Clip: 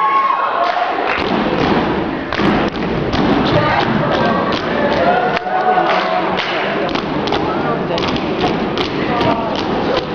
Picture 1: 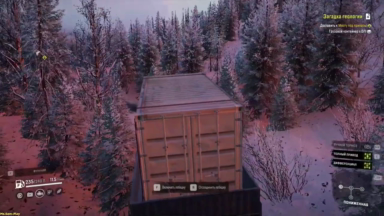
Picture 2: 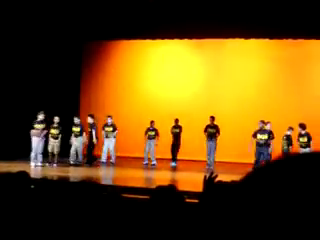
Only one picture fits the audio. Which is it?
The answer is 2